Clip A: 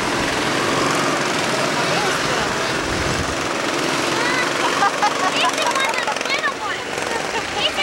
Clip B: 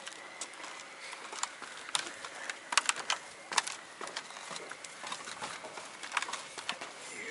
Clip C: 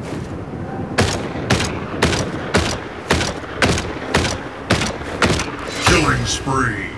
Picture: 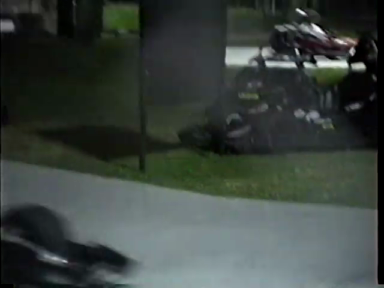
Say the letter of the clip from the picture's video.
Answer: A